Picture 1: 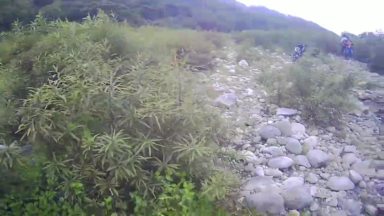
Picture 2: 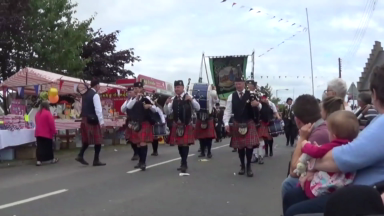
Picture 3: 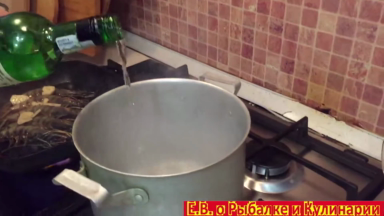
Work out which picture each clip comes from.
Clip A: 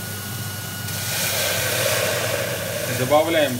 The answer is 3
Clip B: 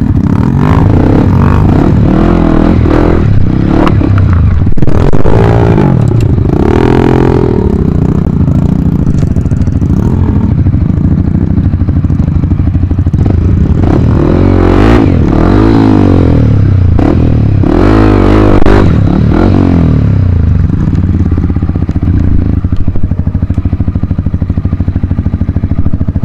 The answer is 1